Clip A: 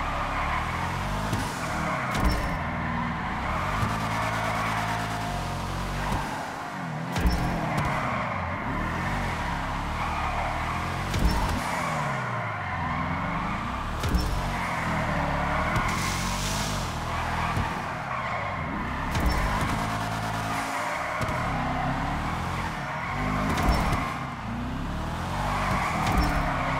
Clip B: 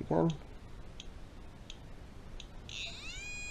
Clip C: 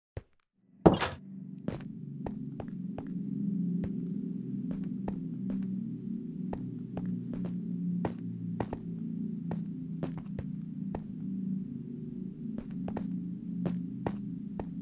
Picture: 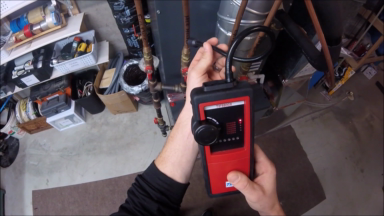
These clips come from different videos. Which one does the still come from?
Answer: B